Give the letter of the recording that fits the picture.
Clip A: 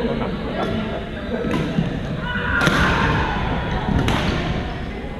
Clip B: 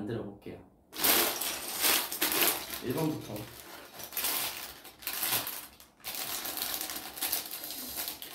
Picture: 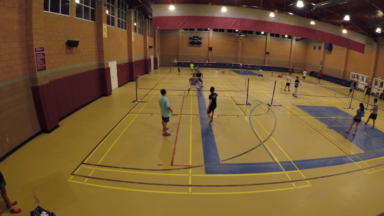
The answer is A